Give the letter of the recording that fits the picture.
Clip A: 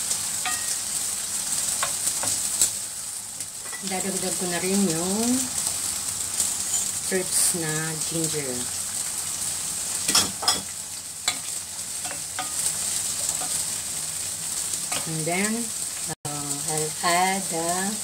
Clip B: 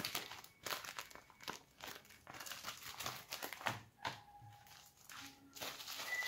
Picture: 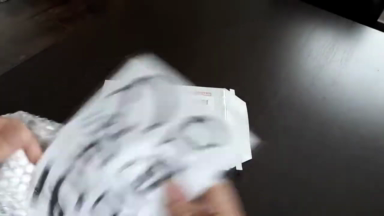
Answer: B